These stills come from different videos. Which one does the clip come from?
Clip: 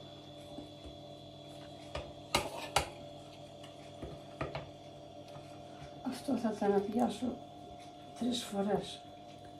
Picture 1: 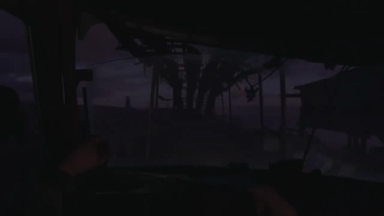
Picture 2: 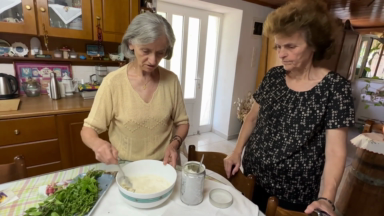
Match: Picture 2